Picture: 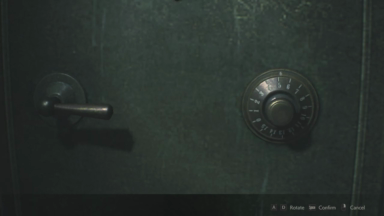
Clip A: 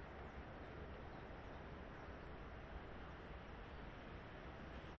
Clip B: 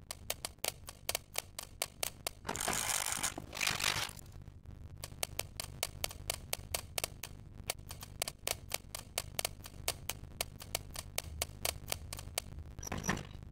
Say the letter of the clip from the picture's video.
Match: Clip B